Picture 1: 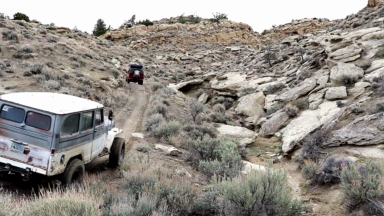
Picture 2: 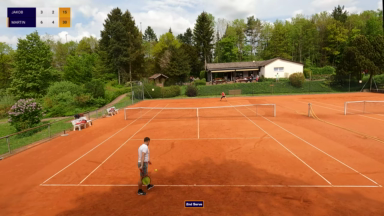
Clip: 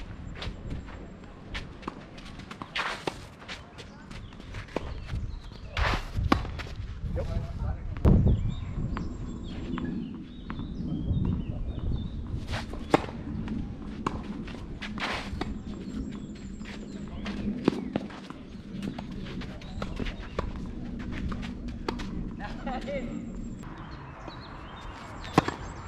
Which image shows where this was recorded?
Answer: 2